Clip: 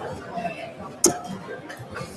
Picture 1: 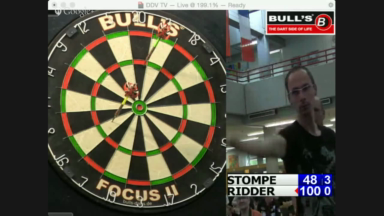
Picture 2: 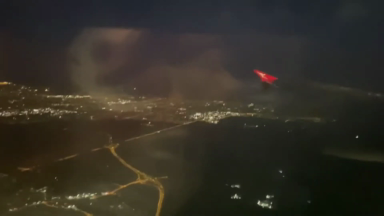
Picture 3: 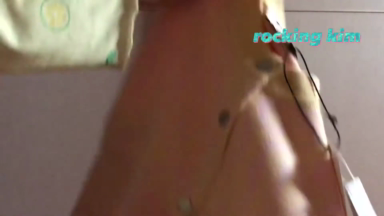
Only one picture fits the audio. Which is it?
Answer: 1